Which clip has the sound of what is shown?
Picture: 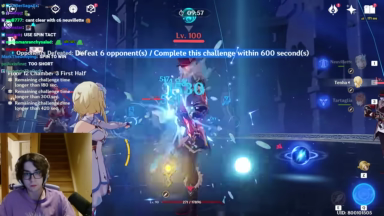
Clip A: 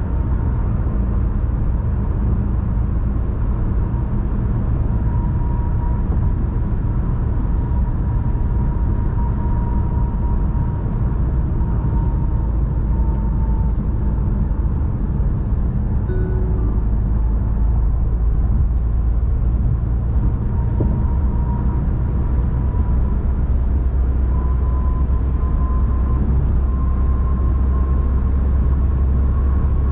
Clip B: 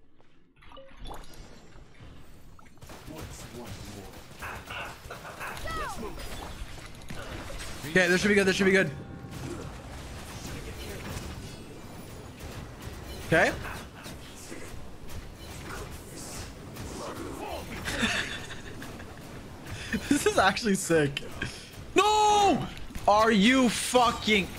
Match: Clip B